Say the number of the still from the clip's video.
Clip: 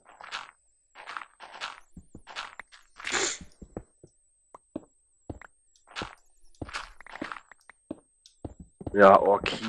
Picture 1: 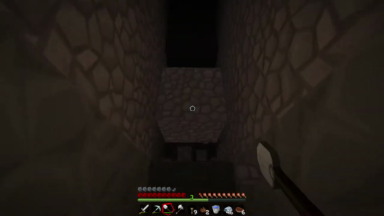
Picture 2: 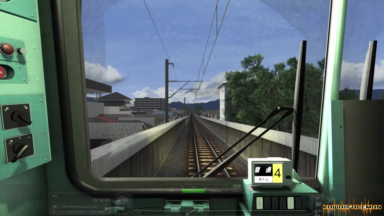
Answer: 1